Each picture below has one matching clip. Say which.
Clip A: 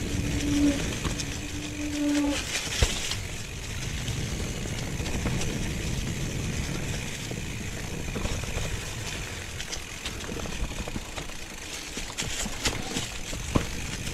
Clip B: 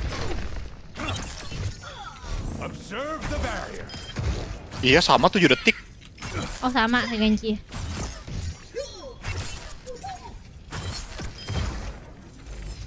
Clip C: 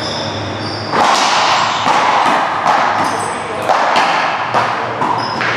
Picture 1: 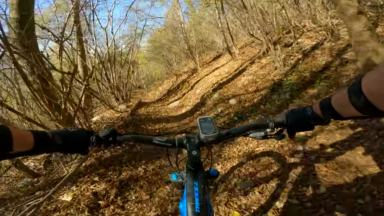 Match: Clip A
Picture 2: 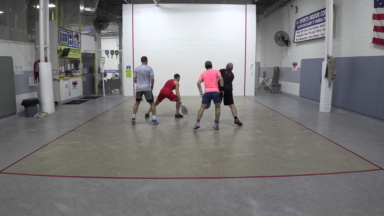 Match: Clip C